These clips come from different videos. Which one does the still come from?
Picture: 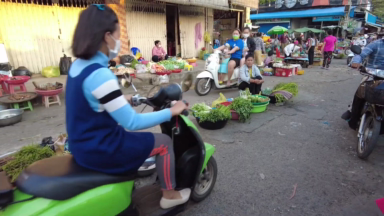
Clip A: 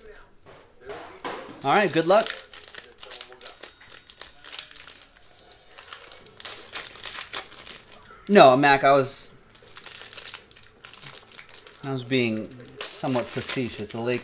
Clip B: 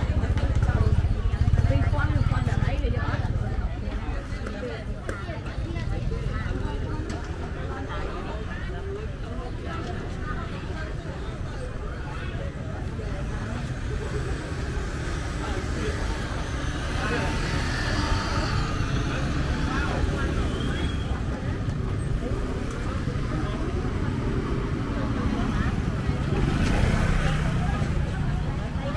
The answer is B